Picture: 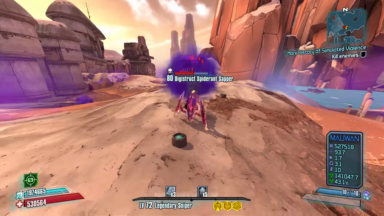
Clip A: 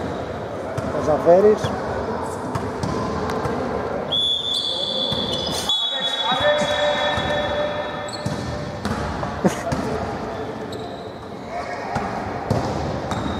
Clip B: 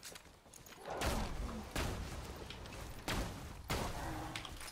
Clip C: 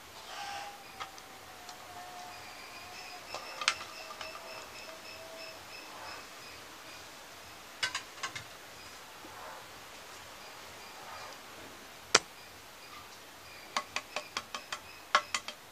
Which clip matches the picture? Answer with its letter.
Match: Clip B